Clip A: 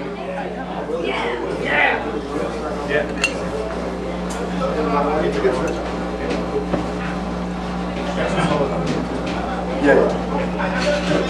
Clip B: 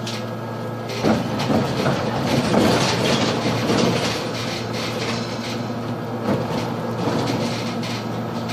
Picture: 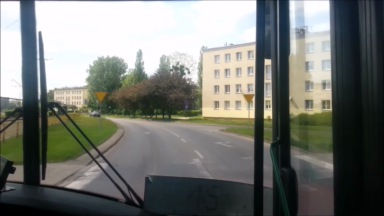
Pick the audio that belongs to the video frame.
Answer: B